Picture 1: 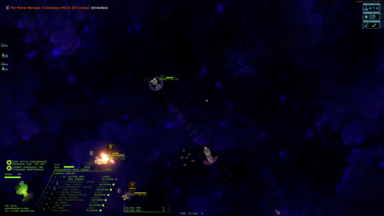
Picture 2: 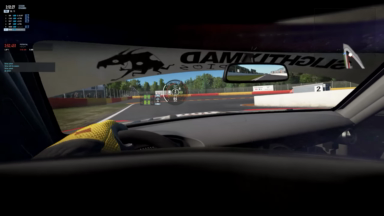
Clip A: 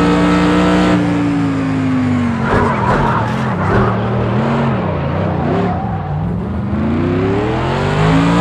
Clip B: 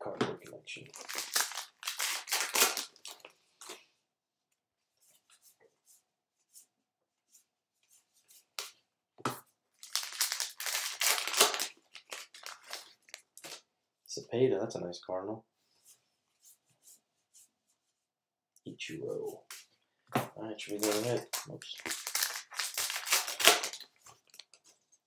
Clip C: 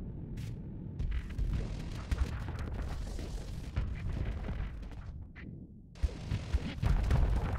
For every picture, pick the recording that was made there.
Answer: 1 C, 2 A